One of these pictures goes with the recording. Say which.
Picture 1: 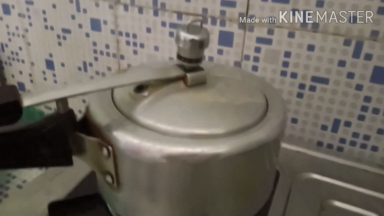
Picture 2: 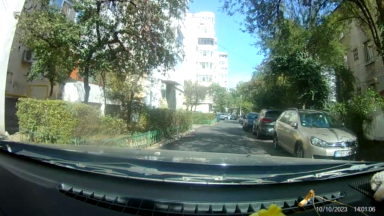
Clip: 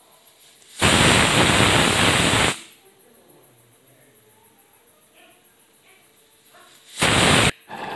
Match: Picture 1